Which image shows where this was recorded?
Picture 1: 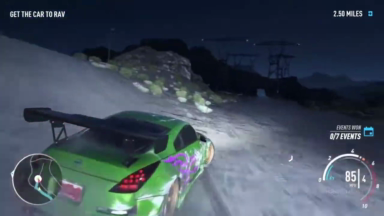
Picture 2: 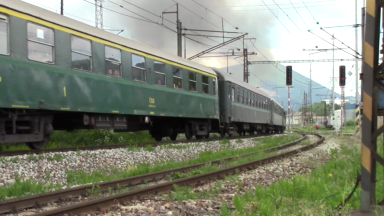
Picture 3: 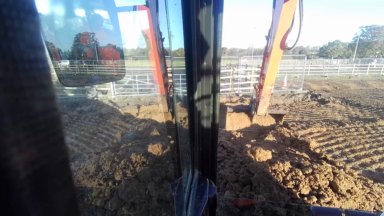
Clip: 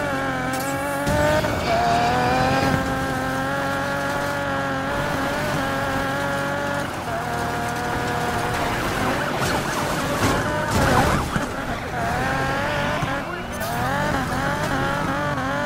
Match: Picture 1